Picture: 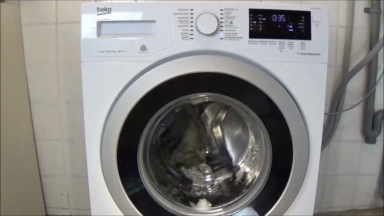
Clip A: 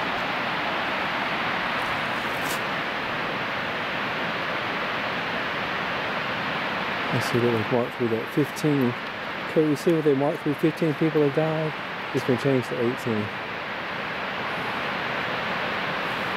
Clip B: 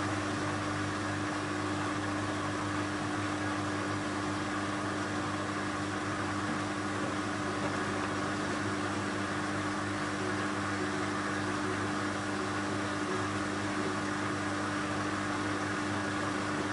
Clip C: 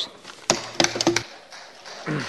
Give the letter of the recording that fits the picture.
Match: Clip B